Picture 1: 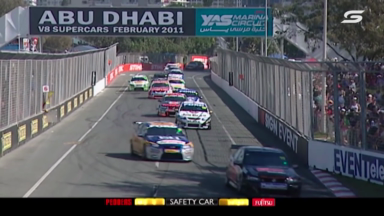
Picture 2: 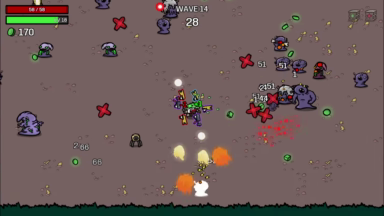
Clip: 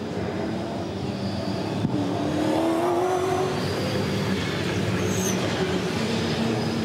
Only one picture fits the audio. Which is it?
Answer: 1